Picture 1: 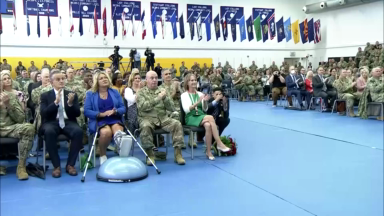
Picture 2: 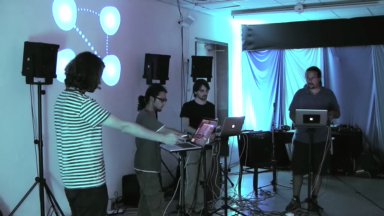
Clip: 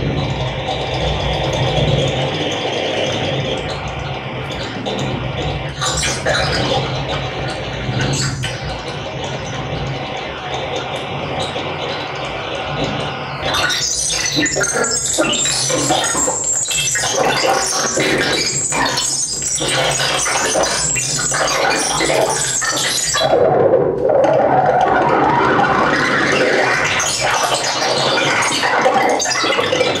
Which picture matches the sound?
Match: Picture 2